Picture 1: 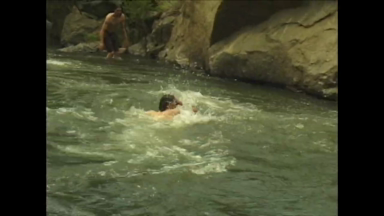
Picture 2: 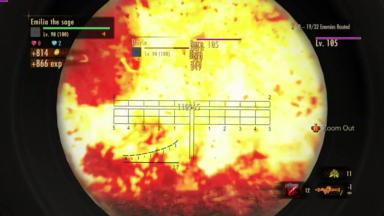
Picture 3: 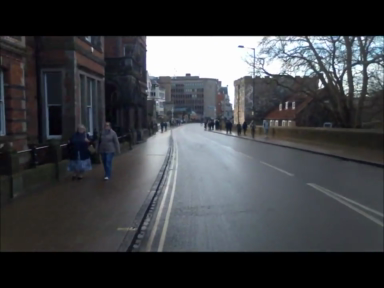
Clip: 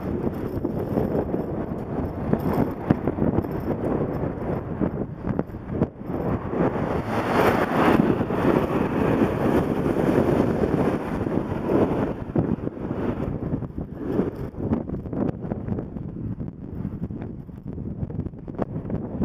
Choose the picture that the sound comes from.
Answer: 3